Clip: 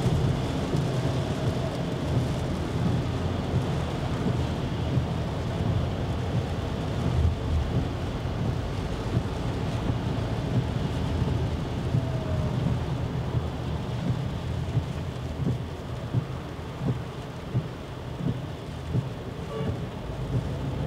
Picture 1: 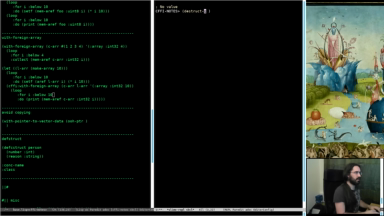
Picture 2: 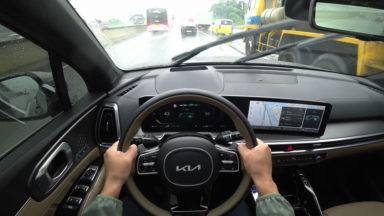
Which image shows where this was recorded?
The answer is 2